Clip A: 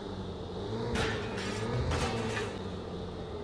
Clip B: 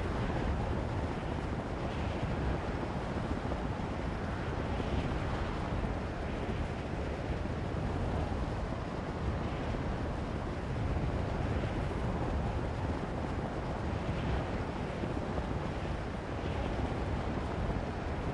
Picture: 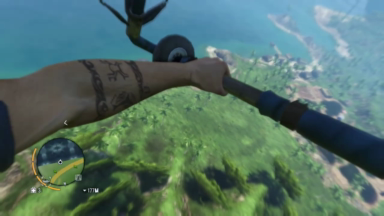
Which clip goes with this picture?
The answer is B